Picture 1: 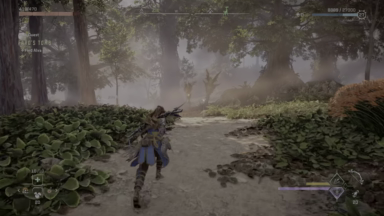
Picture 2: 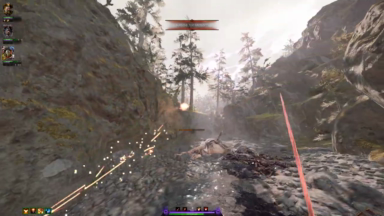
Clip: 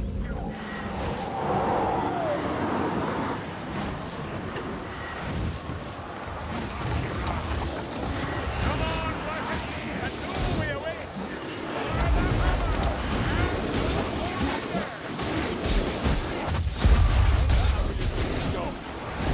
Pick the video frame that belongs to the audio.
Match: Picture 2